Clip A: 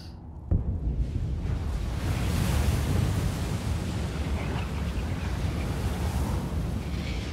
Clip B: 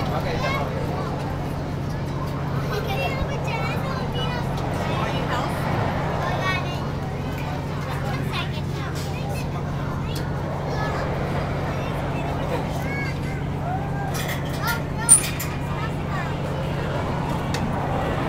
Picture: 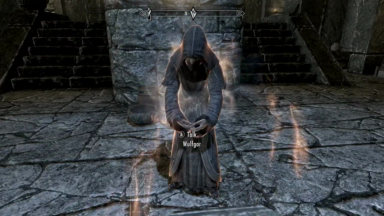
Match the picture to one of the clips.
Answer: A